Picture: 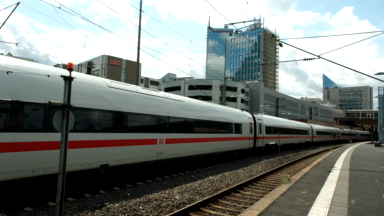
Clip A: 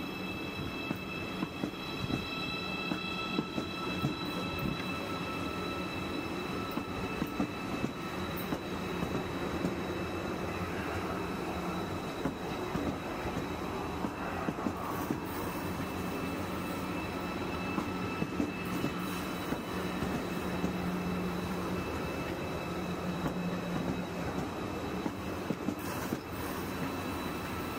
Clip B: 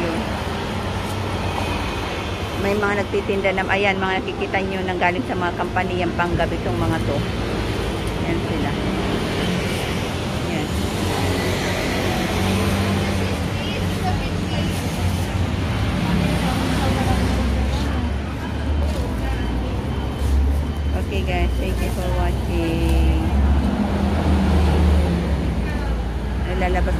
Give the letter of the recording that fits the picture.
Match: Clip A